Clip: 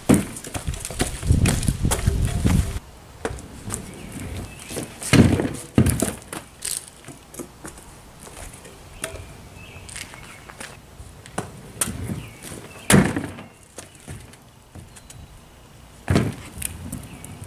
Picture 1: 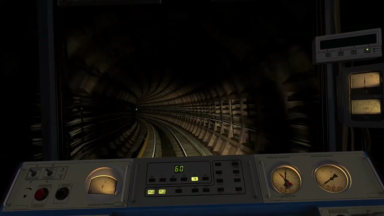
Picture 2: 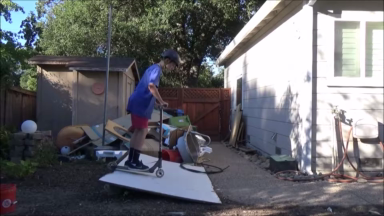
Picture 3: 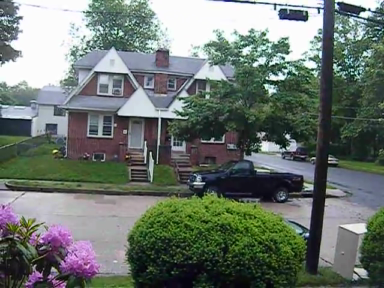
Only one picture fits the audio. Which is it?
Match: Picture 2